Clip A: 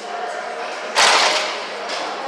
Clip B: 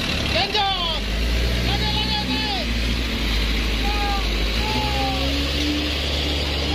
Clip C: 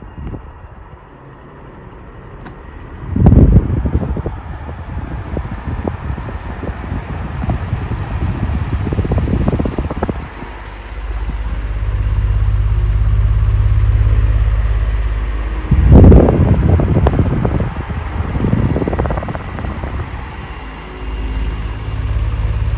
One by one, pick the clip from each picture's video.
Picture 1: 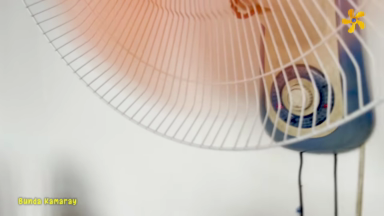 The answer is C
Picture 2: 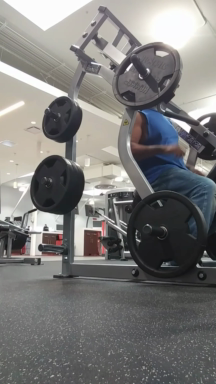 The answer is A